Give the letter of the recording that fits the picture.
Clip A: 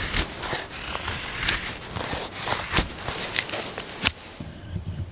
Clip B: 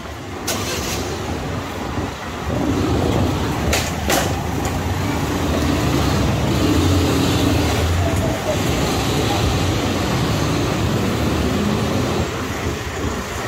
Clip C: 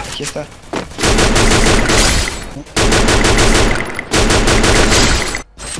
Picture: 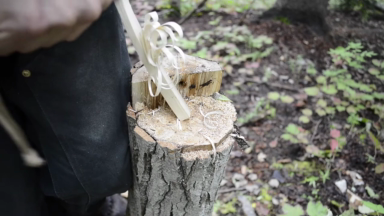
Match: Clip A